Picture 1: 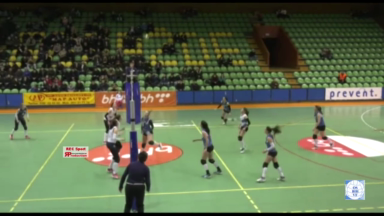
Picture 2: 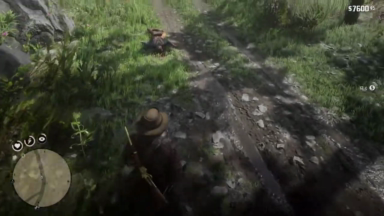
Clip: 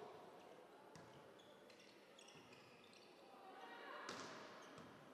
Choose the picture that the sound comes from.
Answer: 1